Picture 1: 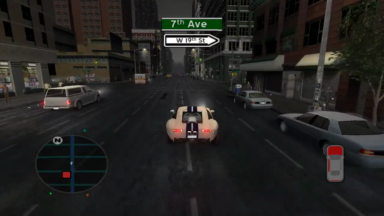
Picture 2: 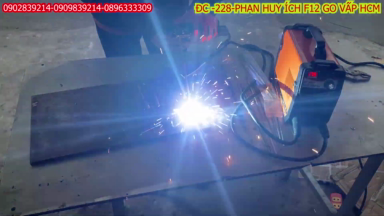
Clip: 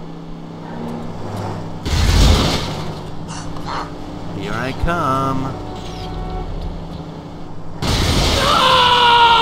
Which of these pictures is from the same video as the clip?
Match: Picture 1